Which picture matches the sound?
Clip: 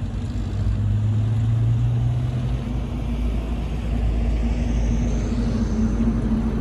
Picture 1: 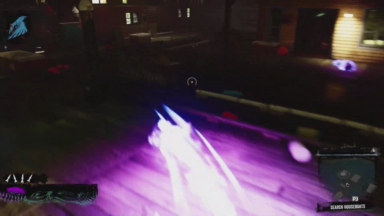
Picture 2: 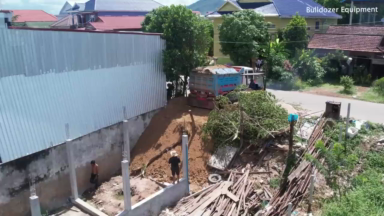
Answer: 2